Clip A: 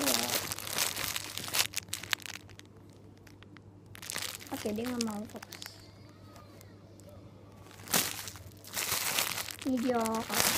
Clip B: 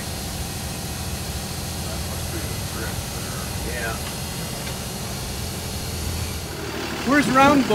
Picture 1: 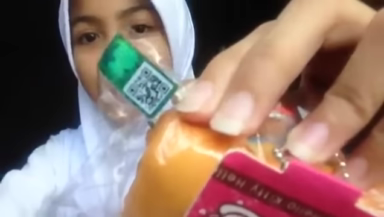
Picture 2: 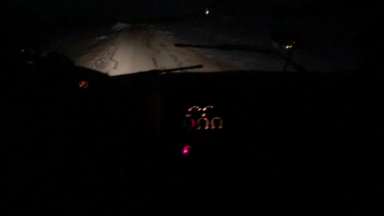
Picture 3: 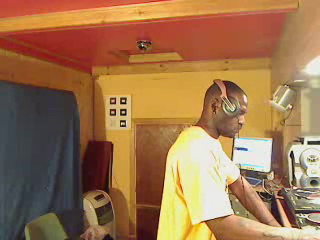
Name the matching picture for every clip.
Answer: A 1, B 2